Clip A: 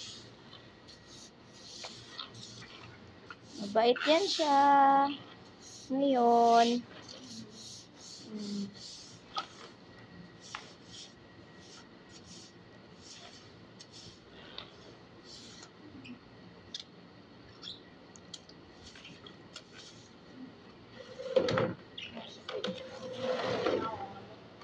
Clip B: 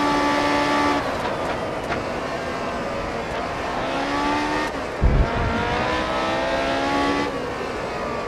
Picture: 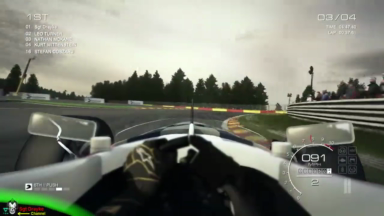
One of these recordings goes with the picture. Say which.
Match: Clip B